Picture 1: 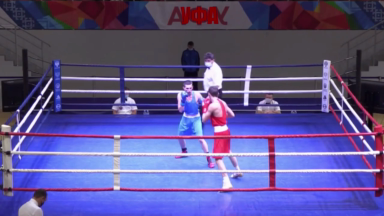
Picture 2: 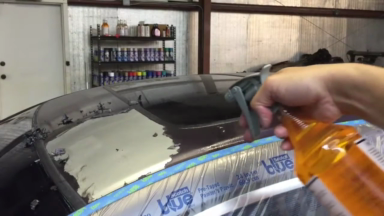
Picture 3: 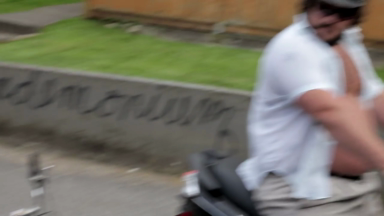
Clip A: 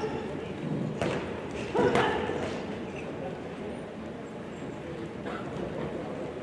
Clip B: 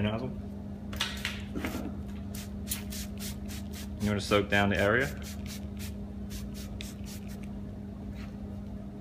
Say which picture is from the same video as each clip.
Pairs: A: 1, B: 2